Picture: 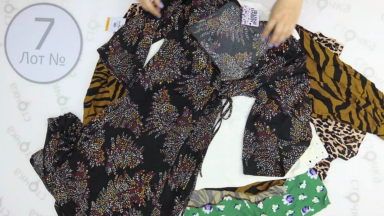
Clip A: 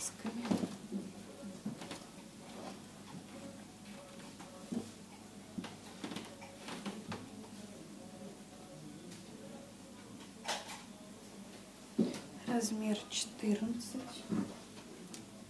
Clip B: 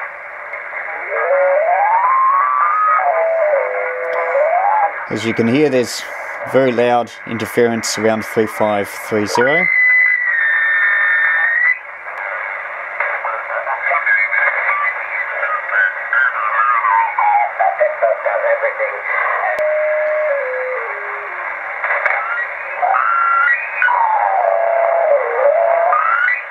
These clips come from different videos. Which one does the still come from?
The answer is A